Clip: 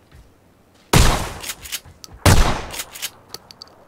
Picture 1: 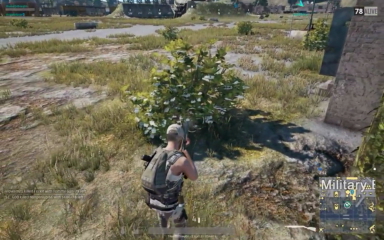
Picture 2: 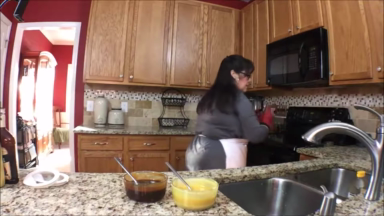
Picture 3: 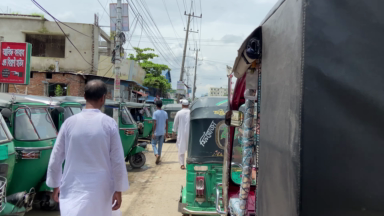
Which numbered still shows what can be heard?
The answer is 1